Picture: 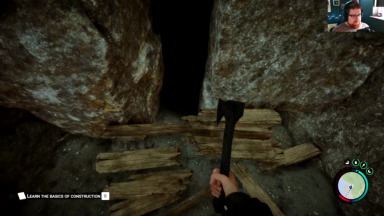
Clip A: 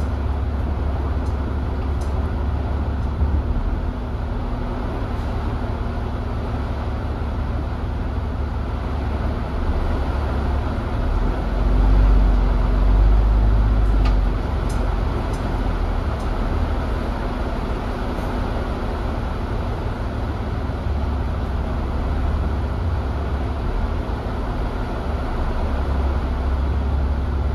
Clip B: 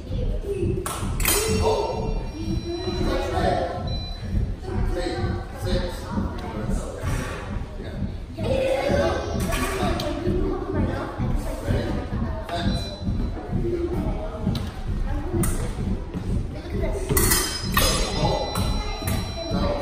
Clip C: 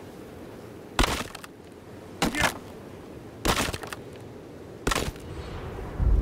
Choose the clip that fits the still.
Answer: C